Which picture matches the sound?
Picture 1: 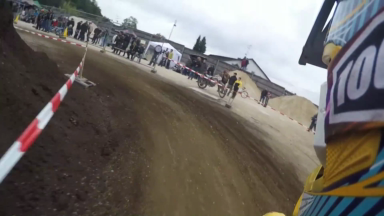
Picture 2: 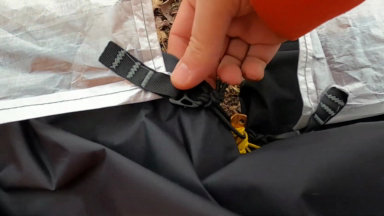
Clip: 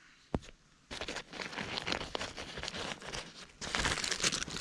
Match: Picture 2